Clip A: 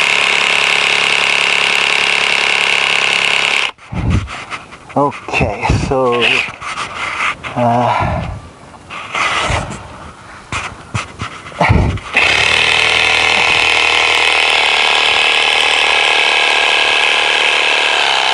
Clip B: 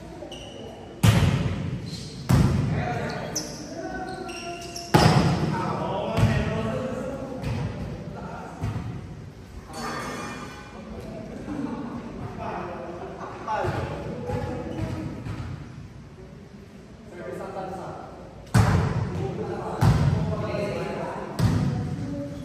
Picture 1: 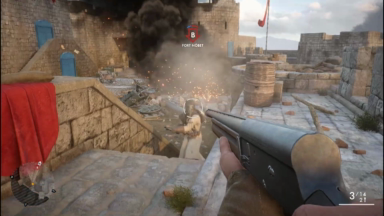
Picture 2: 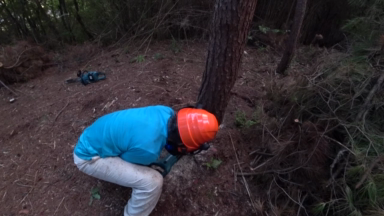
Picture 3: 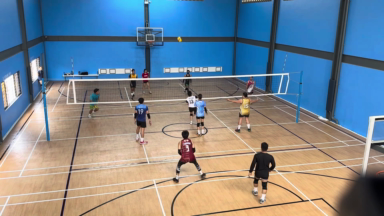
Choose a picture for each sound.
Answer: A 2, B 3